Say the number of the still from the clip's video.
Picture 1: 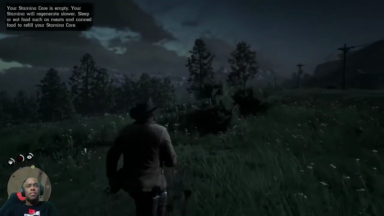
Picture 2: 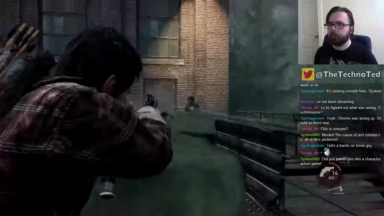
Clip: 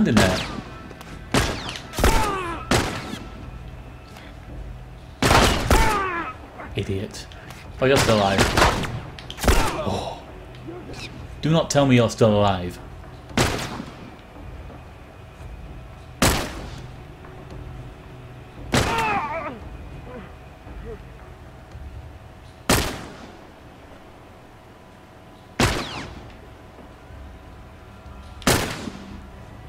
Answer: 2